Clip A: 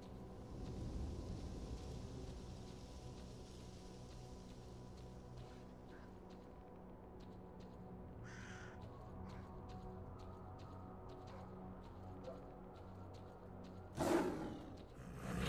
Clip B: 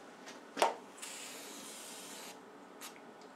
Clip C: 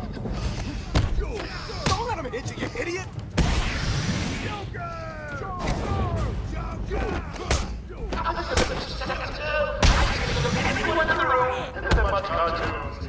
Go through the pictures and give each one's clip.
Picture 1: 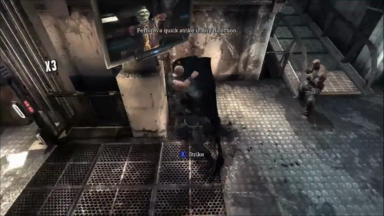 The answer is C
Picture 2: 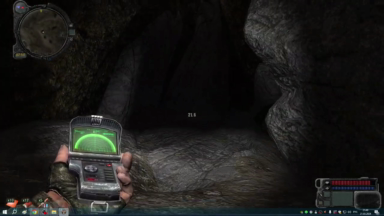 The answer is A